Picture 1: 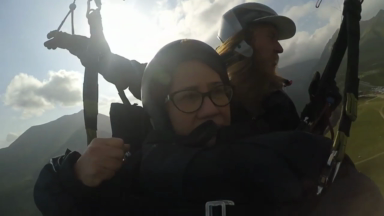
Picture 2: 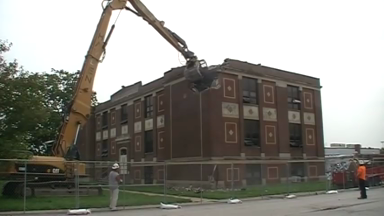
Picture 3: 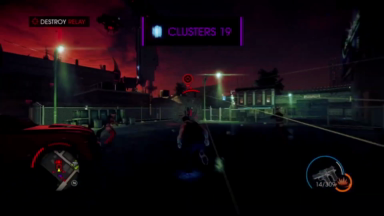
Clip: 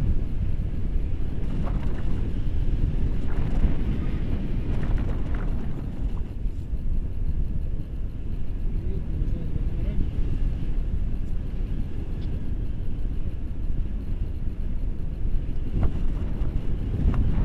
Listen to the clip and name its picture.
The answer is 1